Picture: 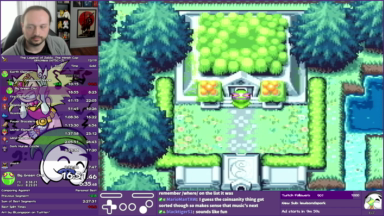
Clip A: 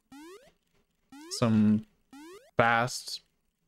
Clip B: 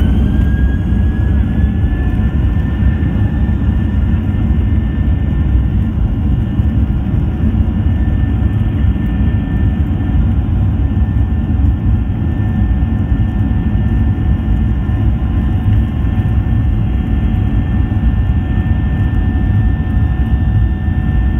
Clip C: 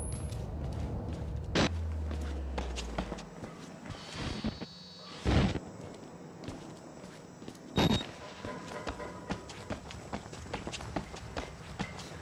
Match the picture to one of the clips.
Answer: A